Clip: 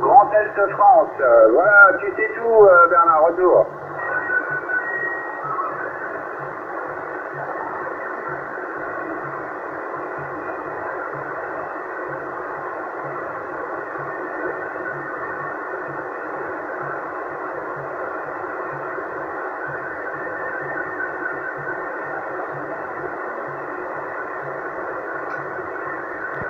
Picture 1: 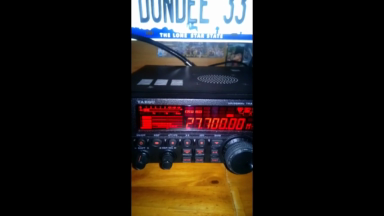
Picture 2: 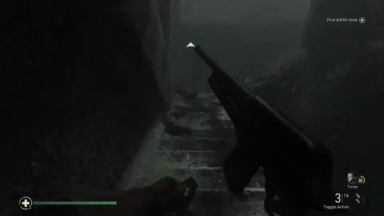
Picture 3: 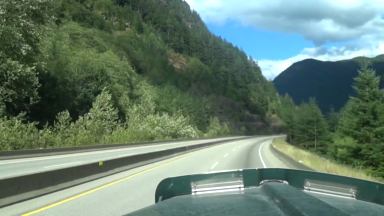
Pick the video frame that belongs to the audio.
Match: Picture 1